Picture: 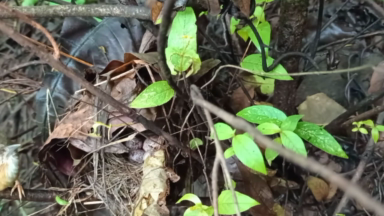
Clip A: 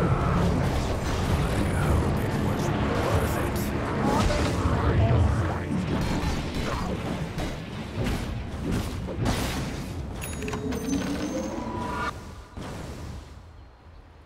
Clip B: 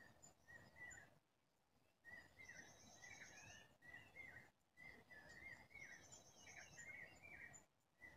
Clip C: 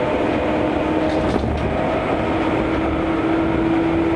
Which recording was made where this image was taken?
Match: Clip B